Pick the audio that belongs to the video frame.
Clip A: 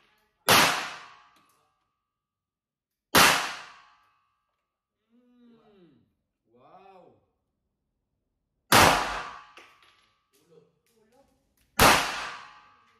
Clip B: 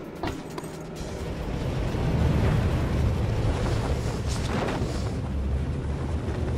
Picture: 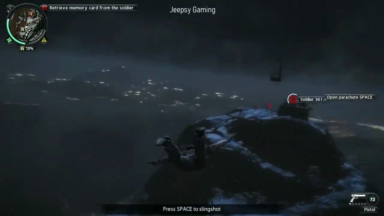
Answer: B